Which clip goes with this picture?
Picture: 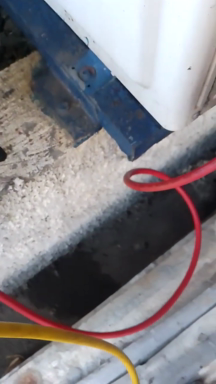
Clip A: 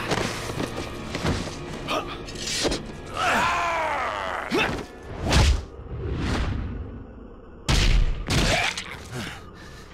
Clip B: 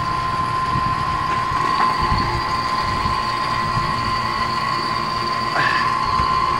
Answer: B